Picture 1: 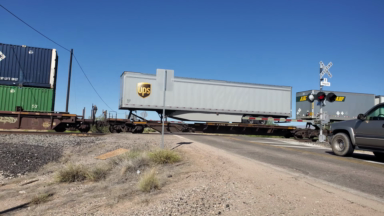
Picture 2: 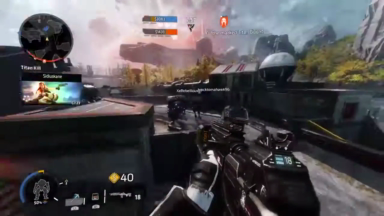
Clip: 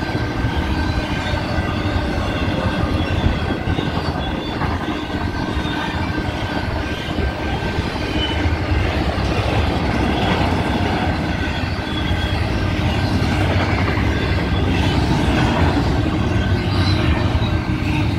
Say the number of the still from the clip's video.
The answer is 1